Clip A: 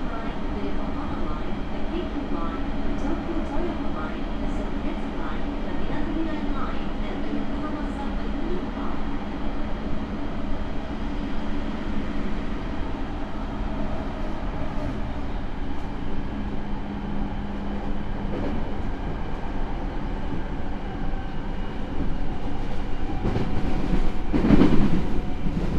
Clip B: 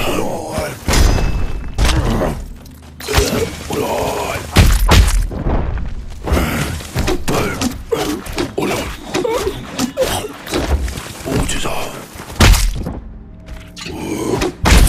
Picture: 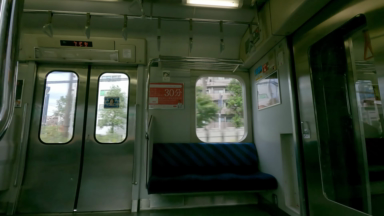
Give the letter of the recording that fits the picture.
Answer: A